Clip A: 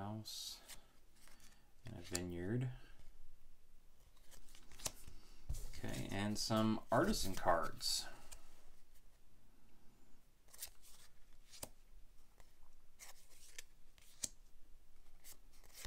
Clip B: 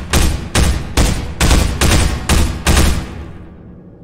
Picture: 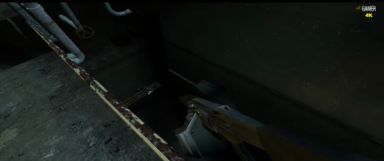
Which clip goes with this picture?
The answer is B